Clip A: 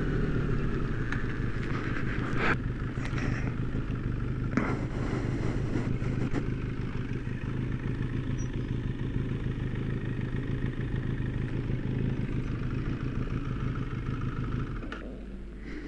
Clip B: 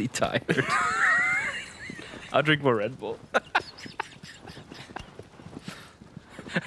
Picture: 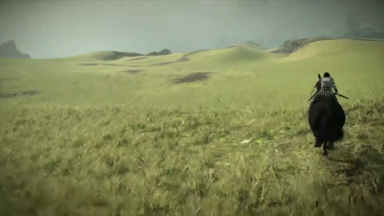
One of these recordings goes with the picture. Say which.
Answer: B